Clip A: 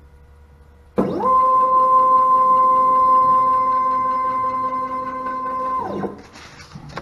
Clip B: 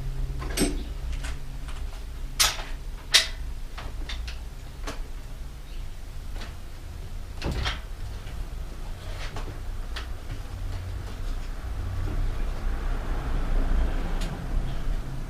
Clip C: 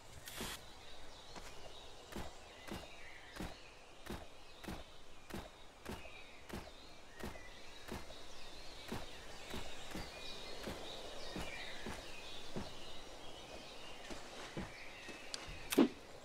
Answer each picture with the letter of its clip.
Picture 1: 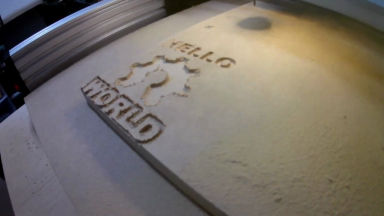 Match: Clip A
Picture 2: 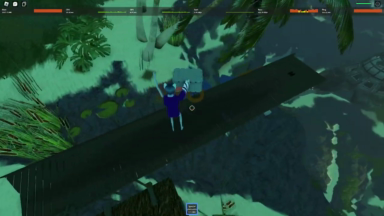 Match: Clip C